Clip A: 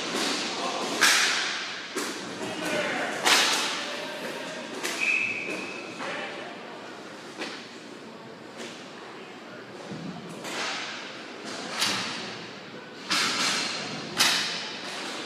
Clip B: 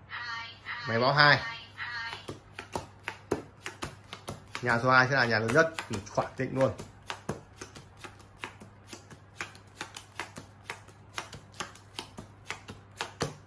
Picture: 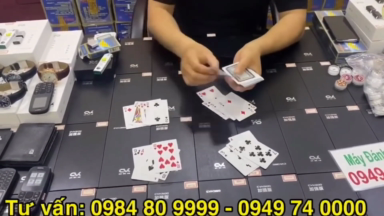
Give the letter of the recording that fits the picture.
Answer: B